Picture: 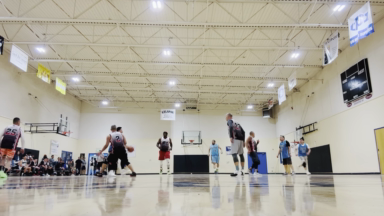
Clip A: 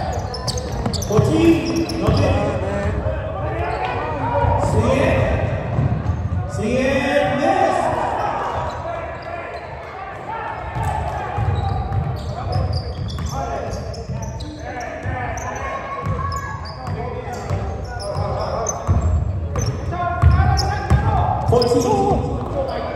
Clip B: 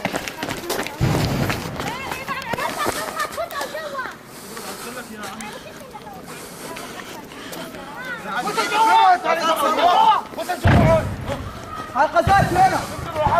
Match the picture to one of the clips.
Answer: A